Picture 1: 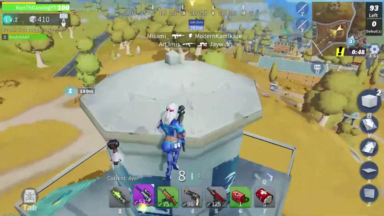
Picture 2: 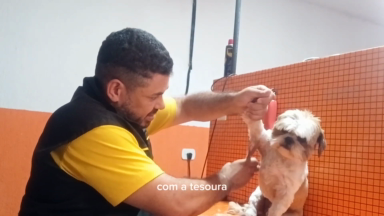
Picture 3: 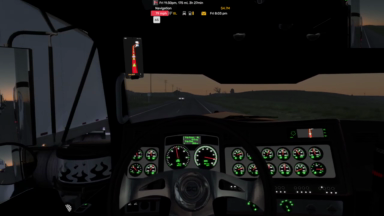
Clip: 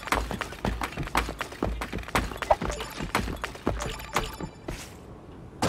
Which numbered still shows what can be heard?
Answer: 1